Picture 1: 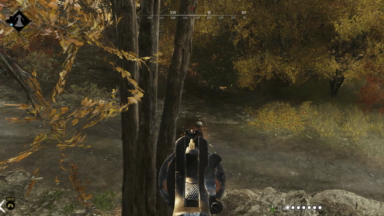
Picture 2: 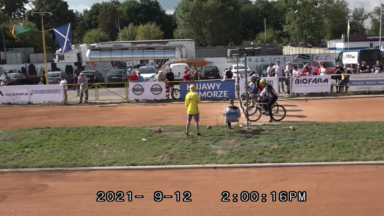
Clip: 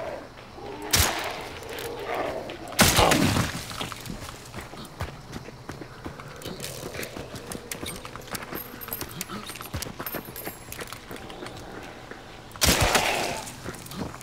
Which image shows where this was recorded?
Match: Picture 1